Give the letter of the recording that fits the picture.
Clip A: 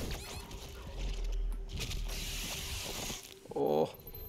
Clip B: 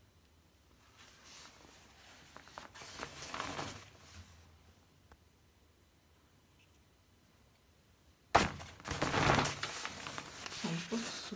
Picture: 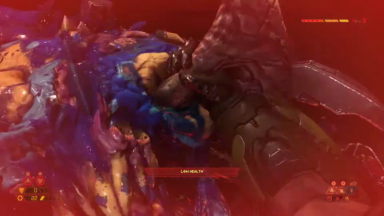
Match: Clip A